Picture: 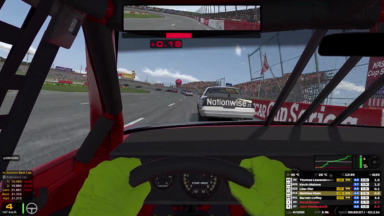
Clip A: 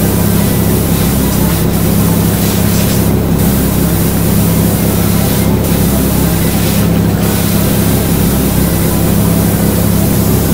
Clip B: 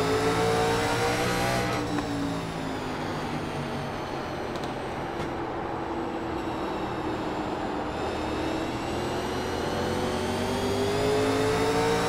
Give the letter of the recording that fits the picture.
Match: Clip B